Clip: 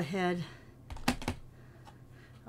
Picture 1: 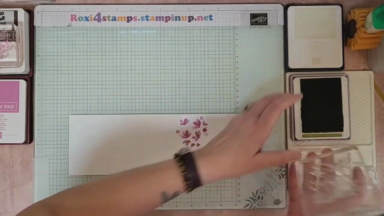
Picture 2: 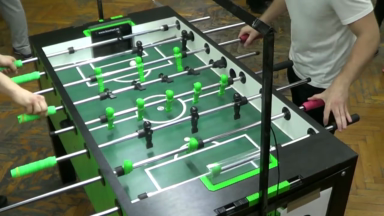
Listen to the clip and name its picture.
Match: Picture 1